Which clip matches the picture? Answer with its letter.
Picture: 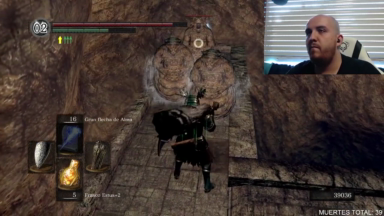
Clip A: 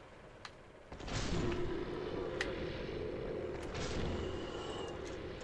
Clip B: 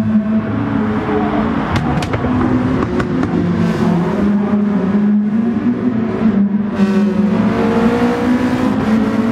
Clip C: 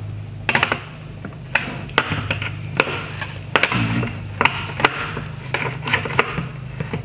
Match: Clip A